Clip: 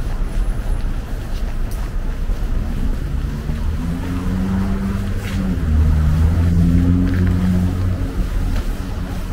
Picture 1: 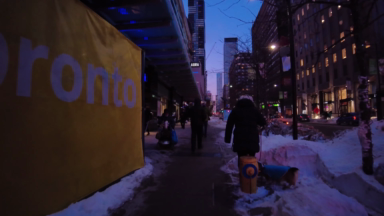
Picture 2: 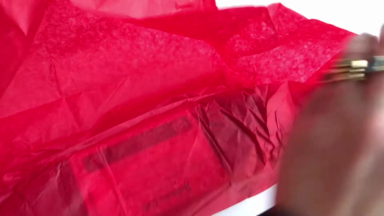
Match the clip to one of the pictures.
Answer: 1